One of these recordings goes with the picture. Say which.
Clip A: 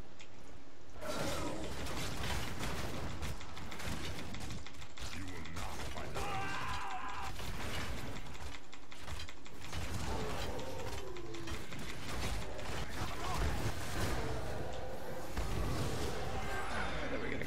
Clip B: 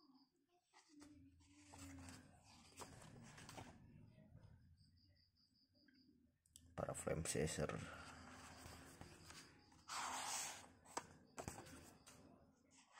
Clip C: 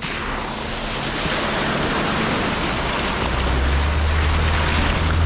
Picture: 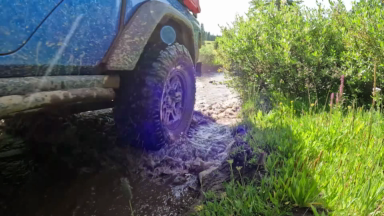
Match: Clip C